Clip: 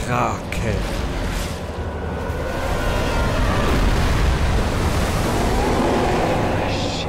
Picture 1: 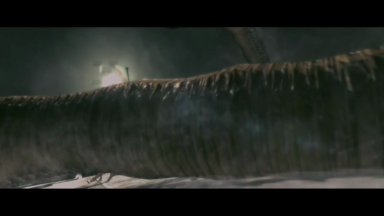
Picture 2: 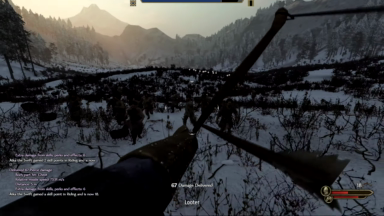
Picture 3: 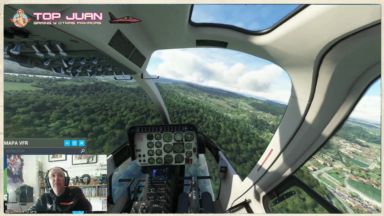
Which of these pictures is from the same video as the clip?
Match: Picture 1